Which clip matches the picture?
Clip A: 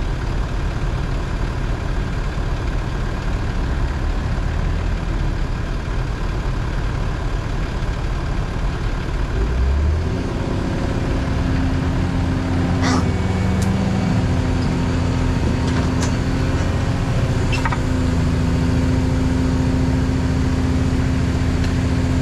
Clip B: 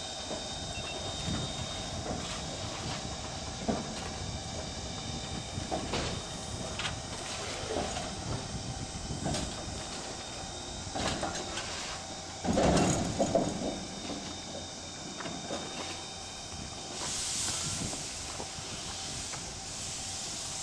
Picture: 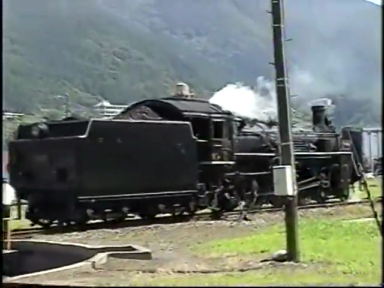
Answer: B